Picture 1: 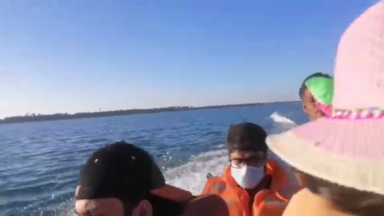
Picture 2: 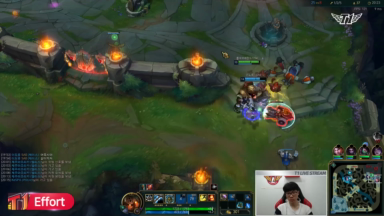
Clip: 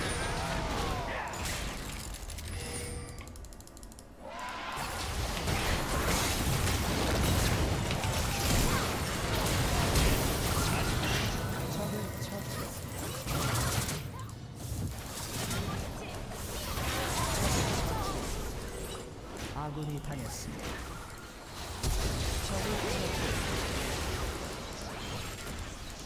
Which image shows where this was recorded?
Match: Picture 2